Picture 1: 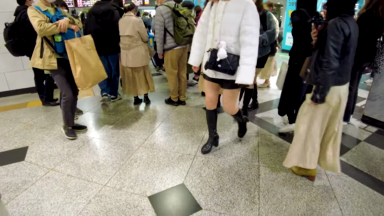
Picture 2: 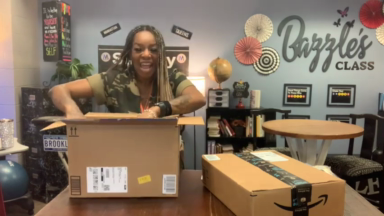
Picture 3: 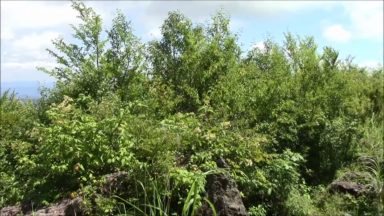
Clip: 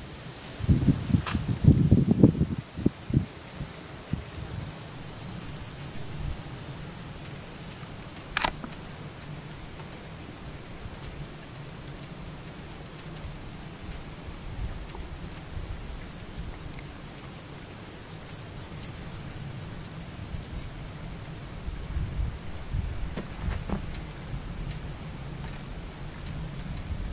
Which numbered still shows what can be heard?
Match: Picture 3